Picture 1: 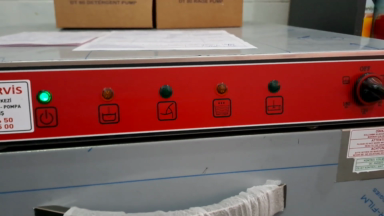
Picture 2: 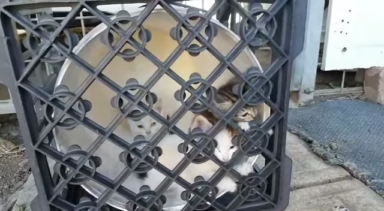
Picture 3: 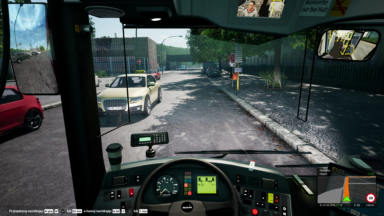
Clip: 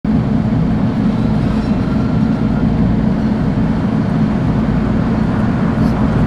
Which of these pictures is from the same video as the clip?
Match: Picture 3